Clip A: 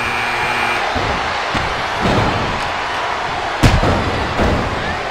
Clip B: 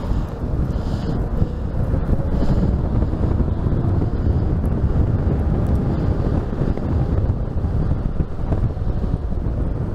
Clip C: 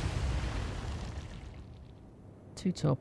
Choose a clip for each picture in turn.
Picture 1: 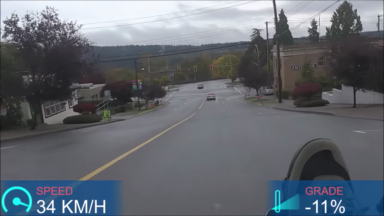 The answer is B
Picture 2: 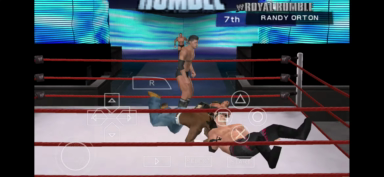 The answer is A